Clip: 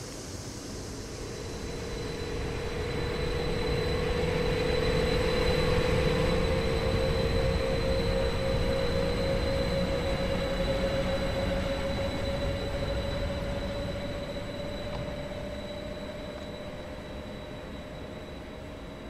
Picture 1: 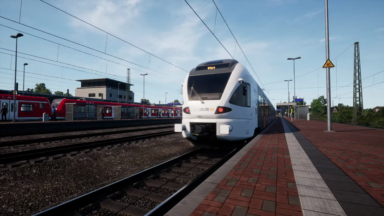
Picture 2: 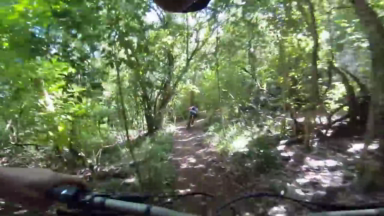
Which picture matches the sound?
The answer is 1